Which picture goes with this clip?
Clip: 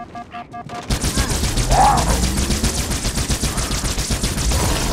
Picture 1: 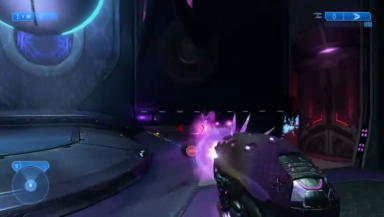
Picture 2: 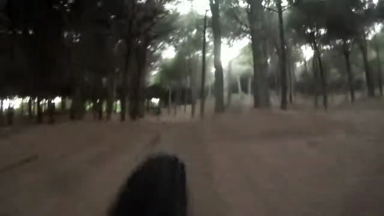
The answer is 1